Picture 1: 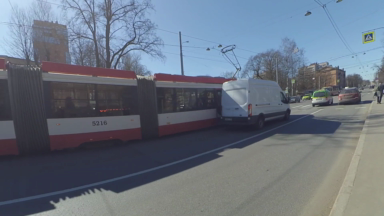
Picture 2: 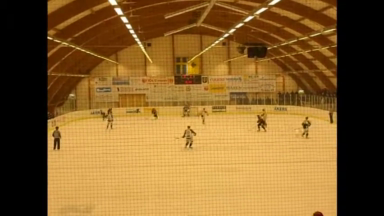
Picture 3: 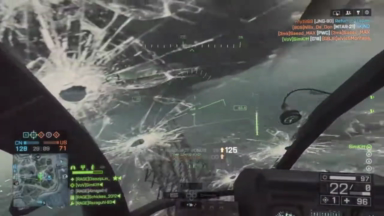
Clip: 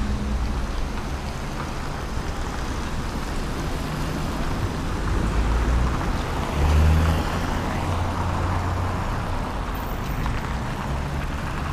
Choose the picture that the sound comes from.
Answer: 1